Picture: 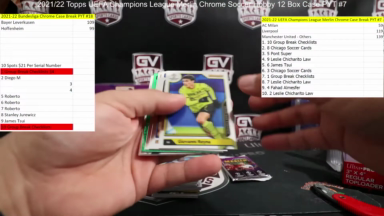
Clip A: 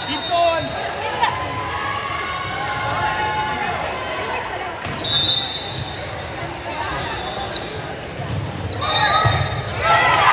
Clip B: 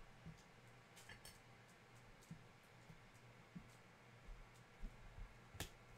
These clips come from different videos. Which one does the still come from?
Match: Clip B